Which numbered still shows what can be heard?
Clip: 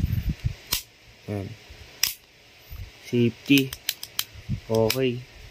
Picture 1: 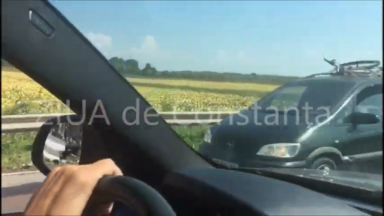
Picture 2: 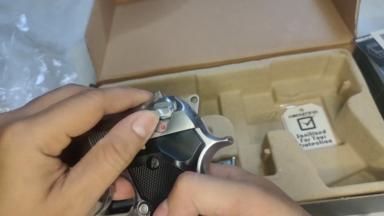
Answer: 2